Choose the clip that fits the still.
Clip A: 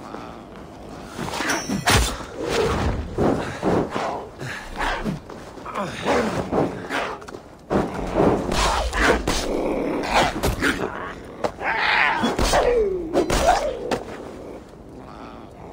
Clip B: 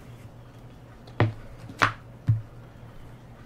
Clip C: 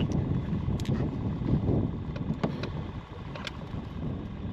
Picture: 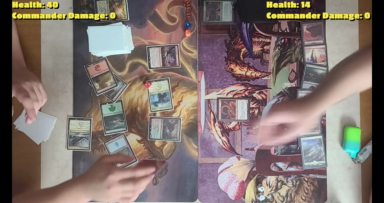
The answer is B